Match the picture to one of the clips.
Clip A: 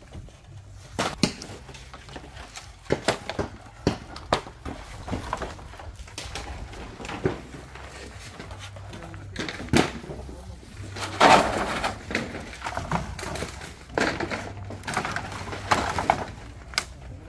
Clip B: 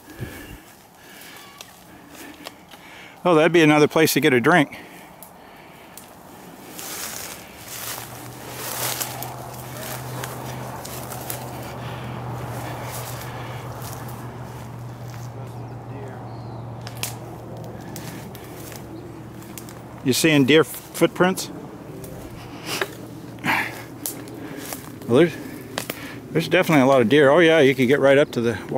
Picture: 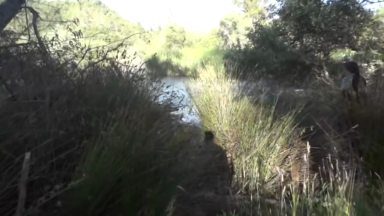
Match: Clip B